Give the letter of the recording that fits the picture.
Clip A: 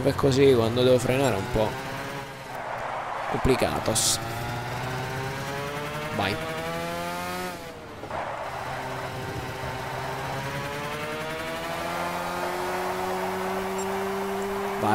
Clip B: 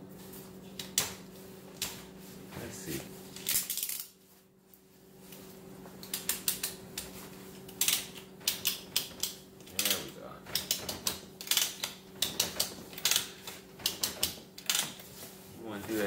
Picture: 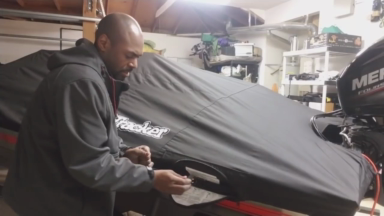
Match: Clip B